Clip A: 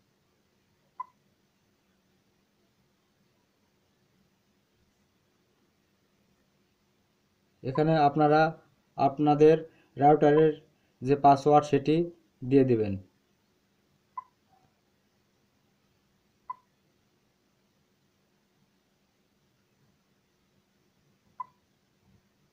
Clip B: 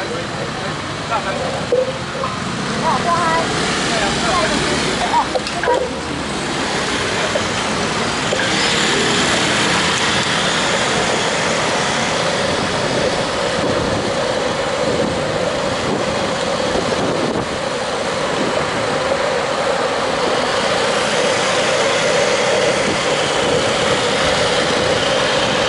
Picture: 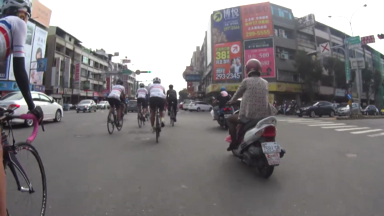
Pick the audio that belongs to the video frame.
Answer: B